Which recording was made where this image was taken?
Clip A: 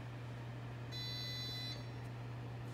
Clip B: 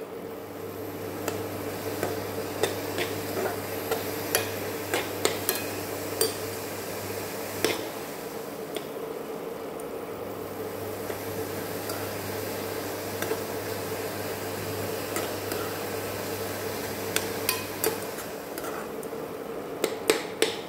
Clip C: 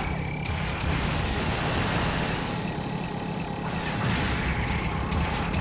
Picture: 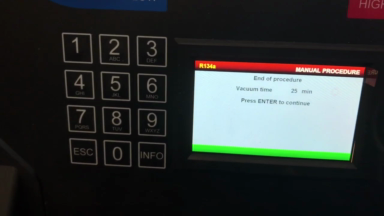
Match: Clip A